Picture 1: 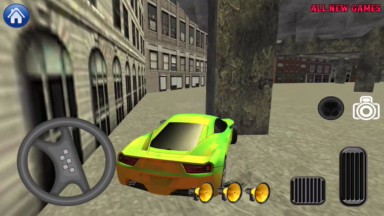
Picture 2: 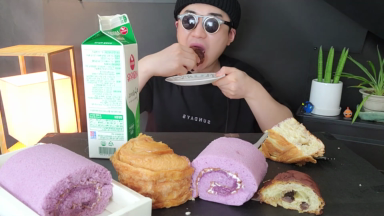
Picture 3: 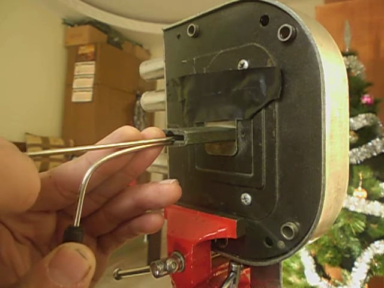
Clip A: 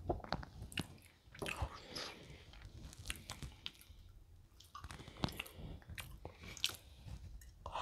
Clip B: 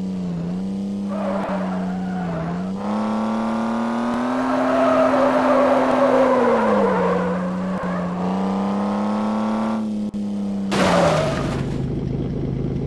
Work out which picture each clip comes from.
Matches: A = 2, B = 1